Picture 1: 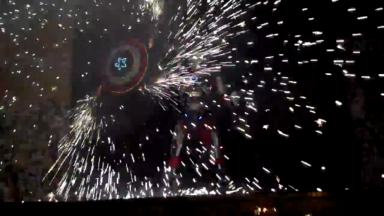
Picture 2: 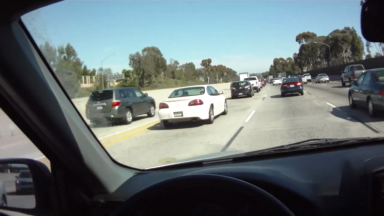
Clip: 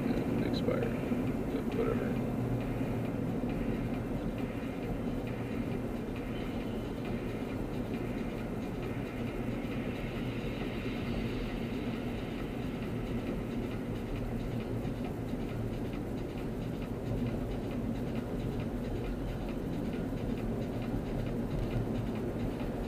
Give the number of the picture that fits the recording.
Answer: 2